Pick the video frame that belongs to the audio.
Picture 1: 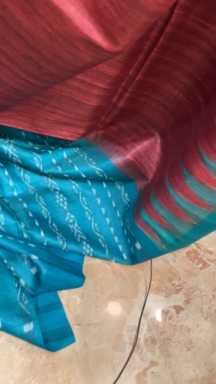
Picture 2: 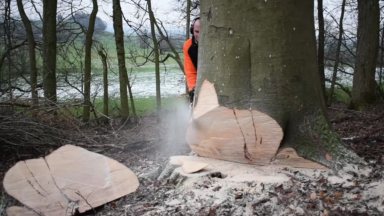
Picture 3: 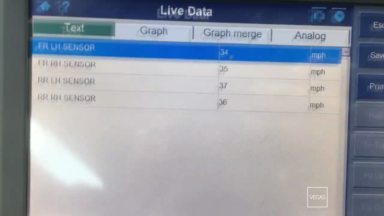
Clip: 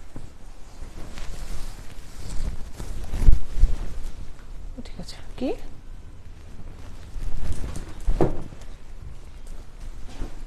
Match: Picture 1